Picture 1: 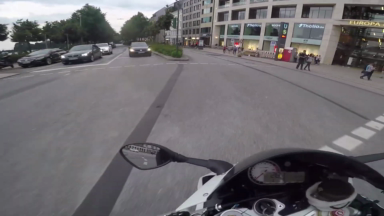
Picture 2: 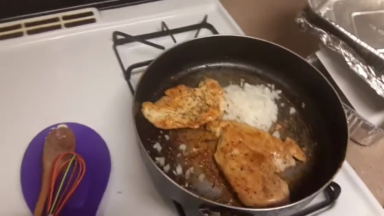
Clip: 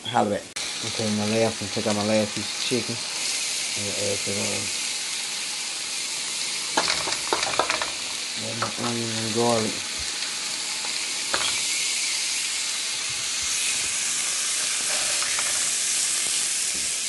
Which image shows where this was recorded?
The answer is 2